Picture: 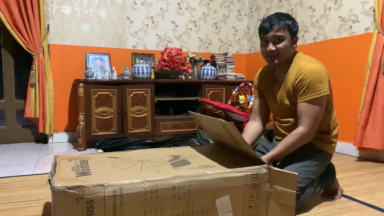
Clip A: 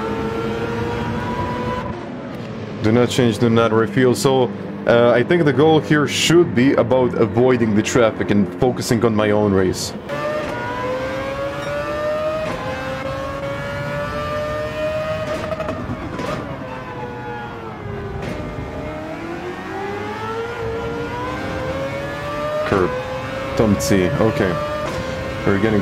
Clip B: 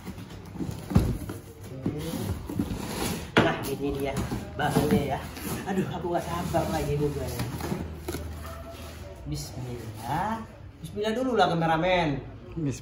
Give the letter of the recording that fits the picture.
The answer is B